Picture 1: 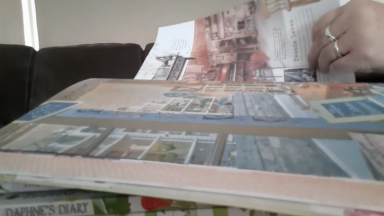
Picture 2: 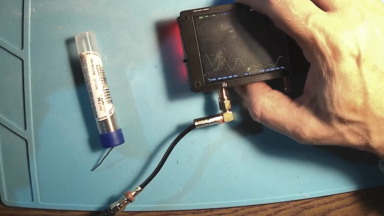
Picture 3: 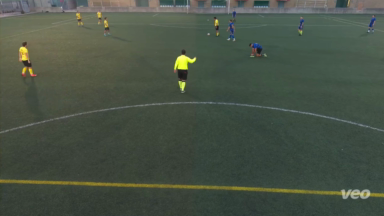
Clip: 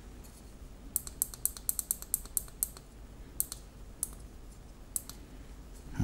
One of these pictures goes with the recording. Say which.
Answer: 2